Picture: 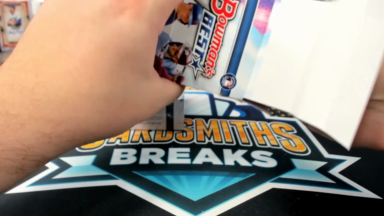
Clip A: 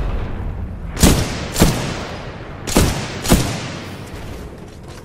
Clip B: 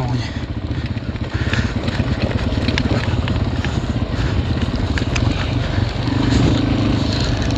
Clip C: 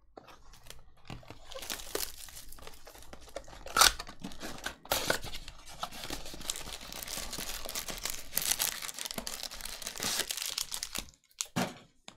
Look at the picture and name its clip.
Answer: C